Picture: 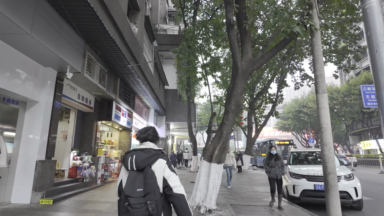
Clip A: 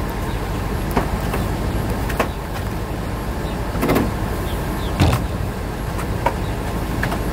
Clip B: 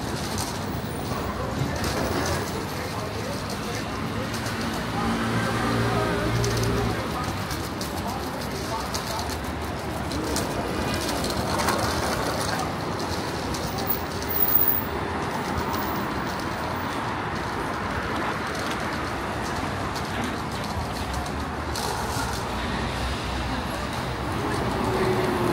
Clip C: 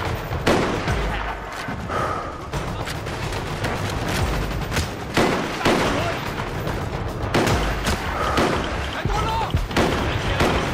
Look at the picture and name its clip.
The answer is B